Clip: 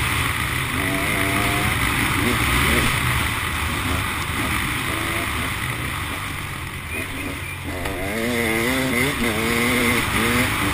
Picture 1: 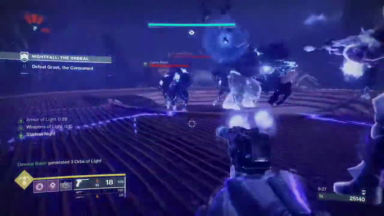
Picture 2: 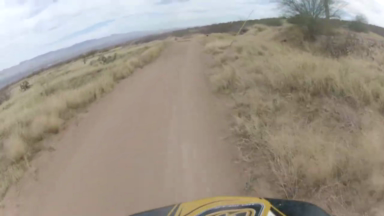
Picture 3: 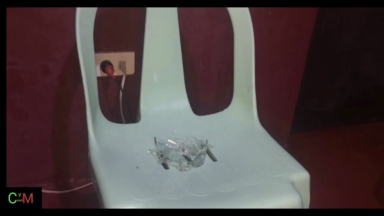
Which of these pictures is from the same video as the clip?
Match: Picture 2